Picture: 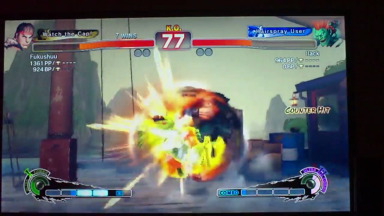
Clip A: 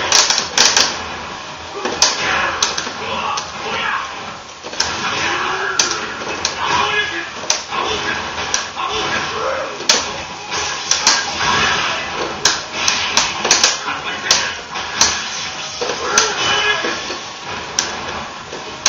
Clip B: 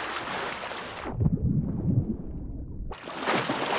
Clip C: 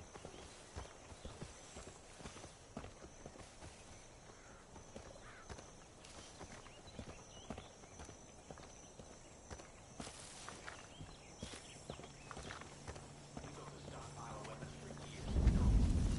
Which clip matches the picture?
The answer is A